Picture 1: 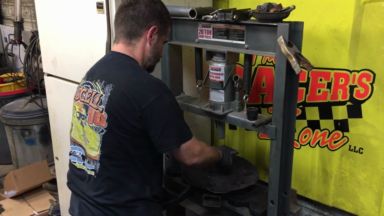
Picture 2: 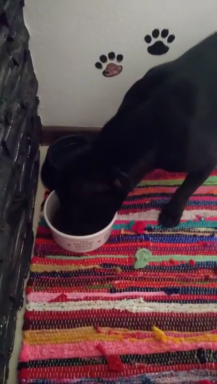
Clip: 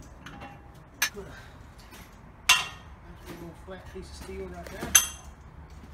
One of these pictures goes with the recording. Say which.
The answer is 1